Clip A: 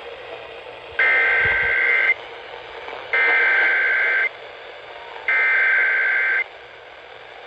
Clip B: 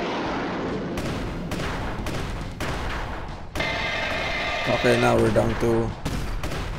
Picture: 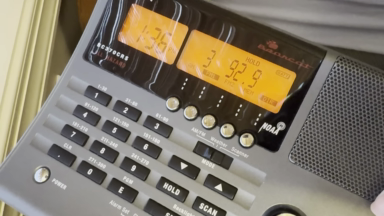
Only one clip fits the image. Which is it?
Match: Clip A